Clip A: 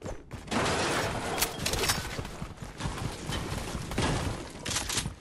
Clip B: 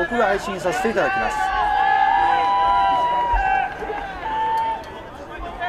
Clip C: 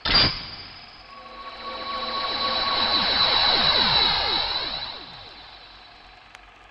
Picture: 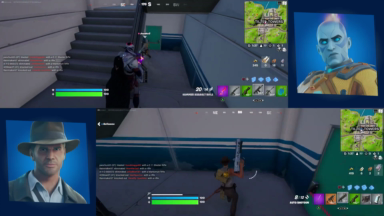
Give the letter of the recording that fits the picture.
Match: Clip A